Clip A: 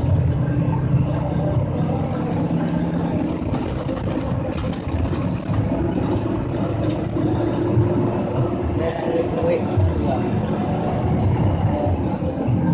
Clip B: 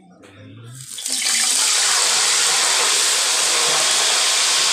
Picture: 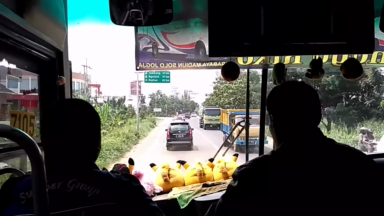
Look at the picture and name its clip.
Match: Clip A